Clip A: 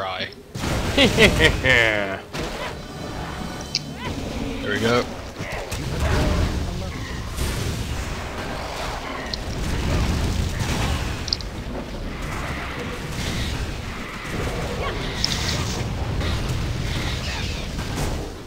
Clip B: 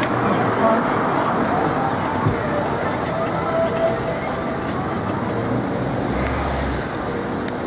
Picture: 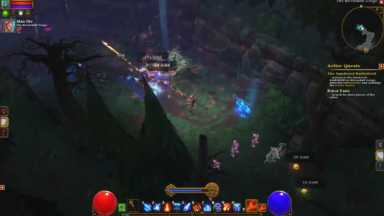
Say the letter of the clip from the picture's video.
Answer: A